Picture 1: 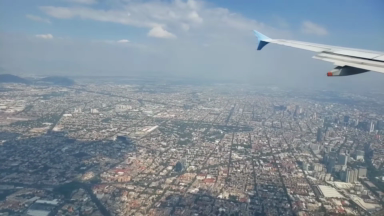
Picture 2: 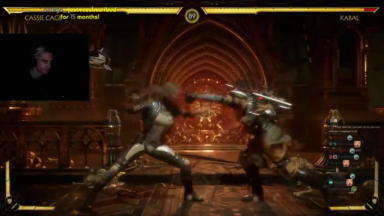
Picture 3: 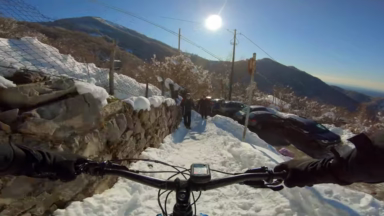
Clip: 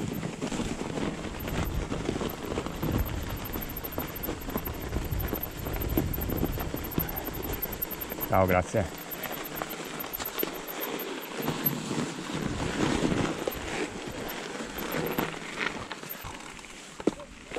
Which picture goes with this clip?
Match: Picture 3